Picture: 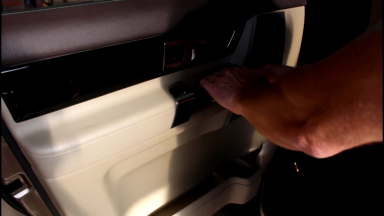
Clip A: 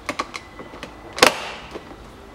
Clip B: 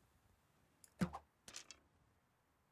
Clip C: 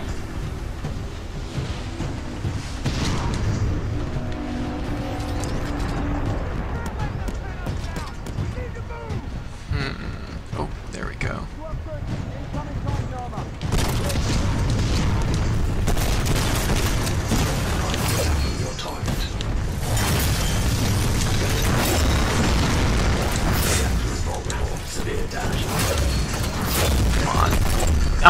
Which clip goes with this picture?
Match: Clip A